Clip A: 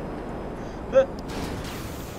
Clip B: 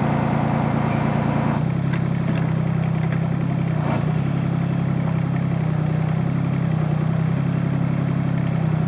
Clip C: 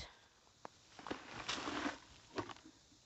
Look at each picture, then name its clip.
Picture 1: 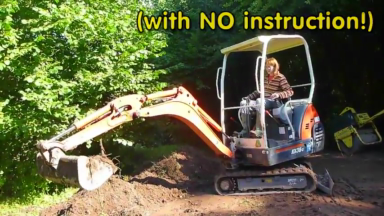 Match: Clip B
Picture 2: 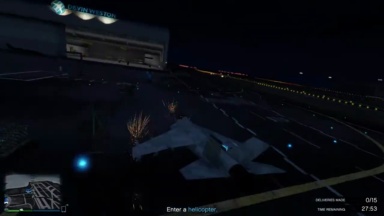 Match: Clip A